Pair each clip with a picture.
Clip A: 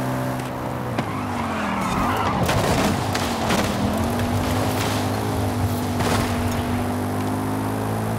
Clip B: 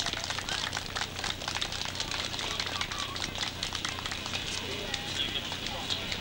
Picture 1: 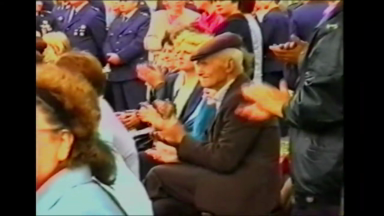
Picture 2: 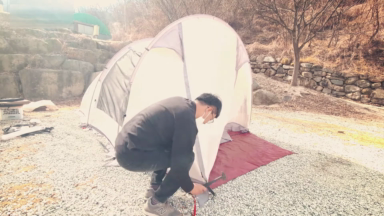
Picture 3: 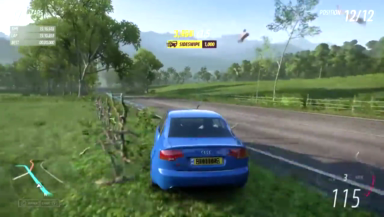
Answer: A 3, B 1